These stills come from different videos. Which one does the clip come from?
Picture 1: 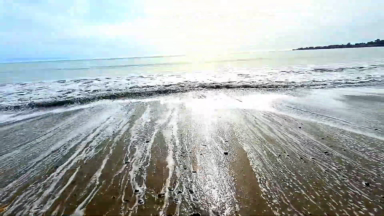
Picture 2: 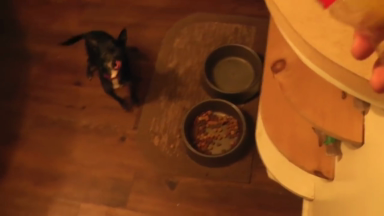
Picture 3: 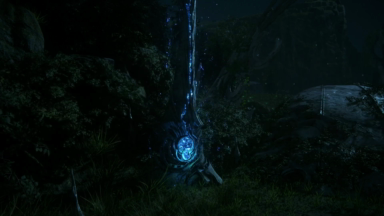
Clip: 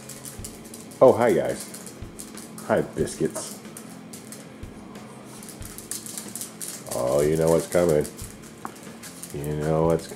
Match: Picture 2